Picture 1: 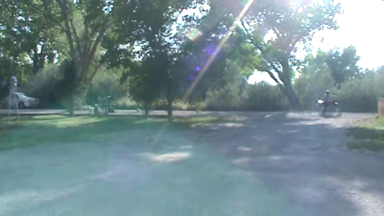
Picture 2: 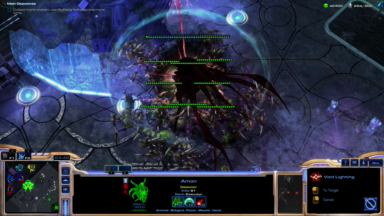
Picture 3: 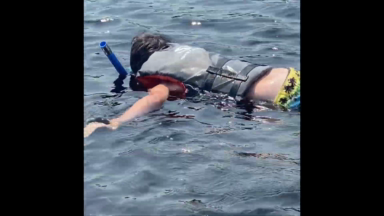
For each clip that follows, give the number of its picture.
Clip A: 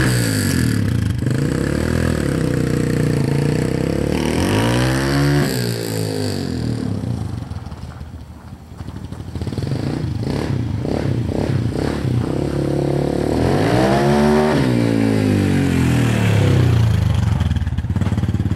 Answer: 1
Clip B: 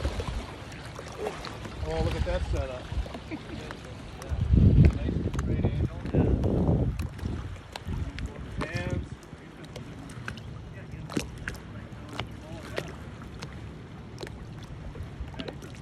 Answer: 3